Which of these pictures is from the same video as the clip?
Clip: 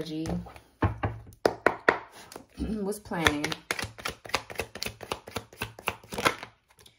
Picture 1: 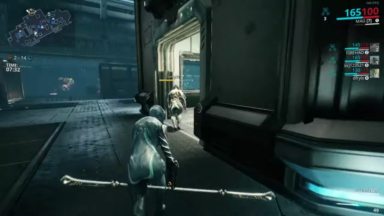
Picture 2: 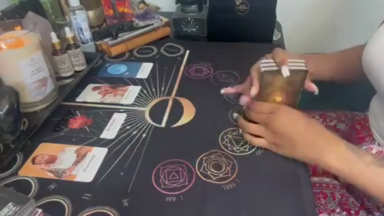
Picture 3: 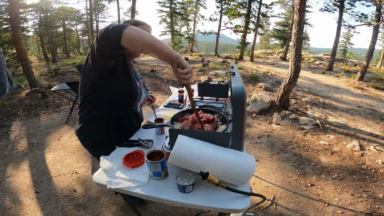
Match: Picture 2